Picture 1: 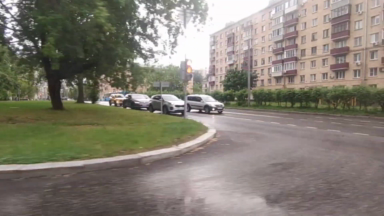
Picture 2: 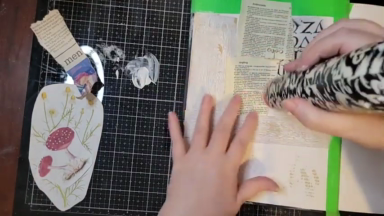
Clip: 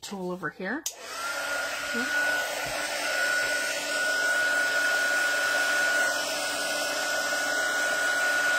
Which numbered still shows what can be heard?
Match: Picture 2